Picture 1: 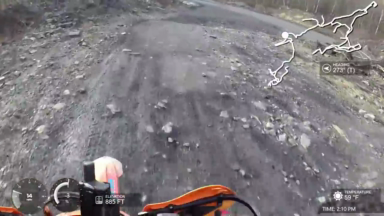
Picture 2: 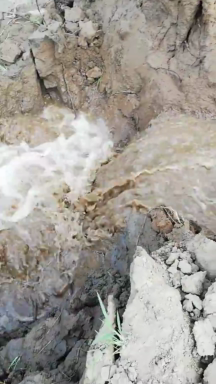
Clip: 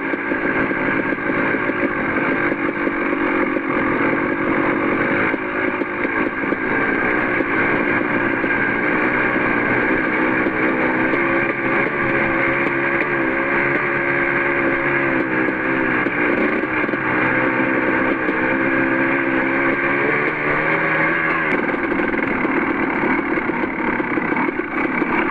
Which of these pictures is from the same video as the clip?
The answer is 1